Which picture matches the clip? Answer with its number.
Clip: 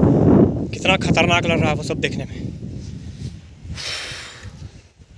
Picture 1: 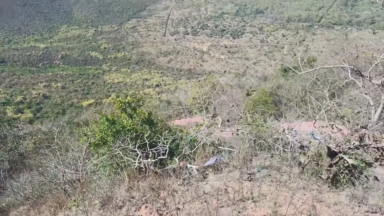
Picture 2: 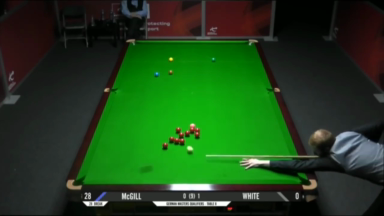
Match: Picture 1